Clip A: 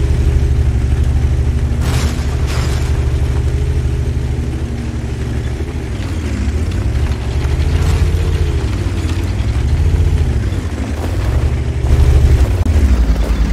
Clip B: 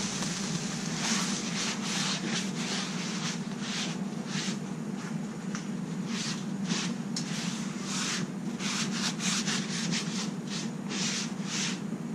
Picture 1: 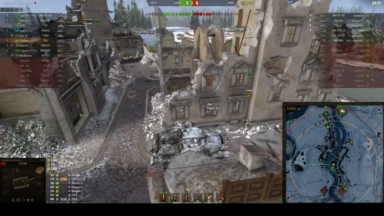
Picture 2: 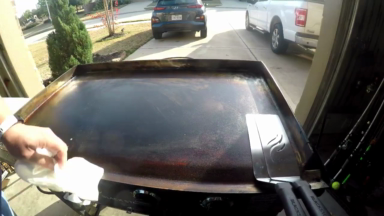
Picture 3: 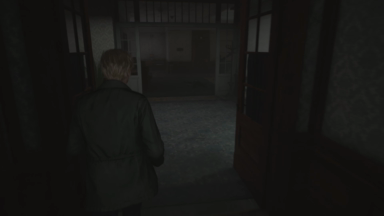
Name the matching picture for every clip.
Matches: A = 1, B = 2